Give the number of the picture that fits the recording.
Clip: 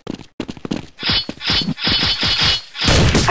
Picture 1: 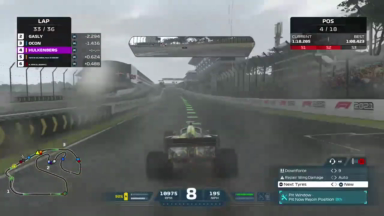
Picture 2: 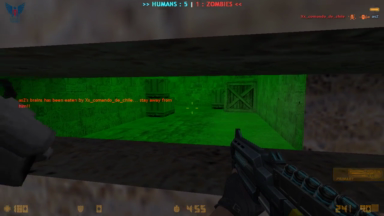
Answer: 2